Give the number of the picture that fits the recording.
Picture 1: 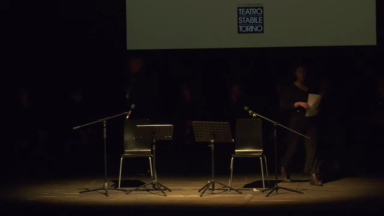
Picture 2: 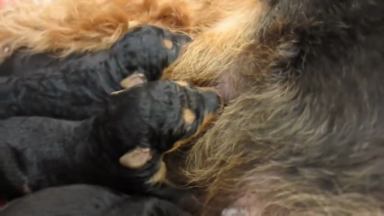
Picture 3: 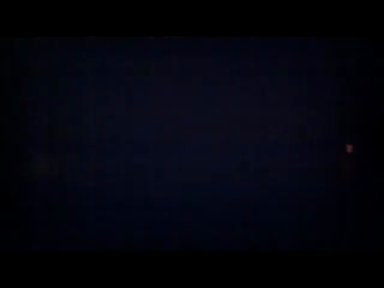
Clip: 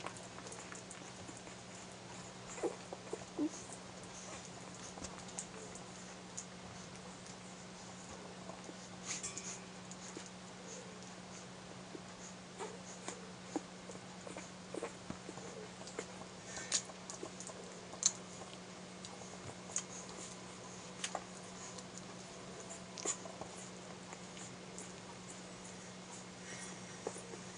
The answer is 2